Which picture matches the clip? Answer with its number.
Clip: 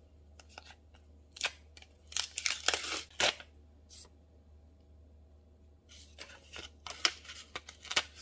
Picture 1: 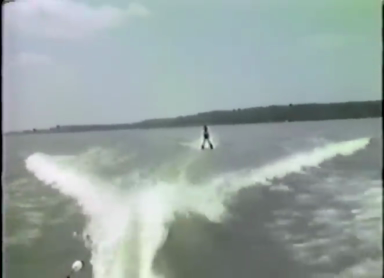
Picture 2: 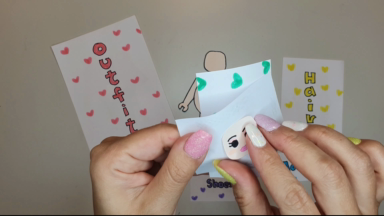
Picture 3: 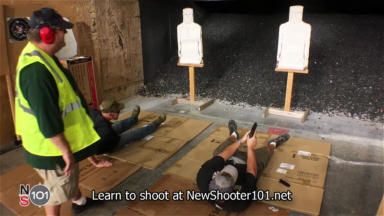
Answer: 2